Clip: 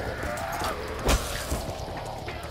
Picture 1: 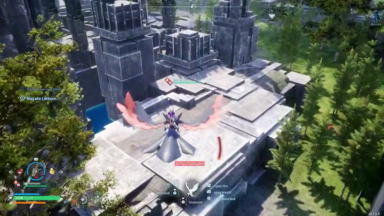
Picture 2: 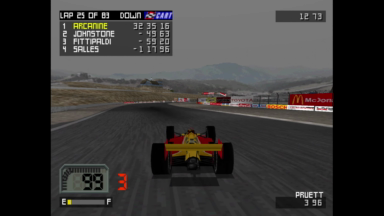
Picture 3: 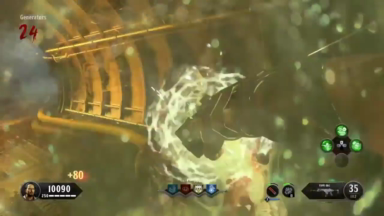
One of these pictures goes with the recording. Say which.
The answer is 3